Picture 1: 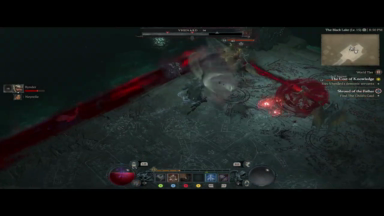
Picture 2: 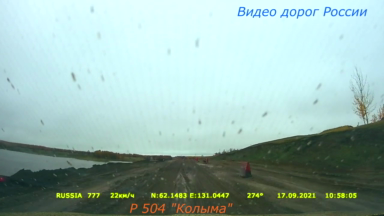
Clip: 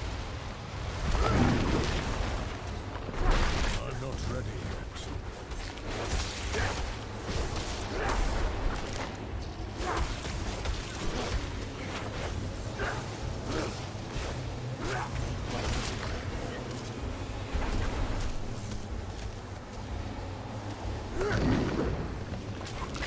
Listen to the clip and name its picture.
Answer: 1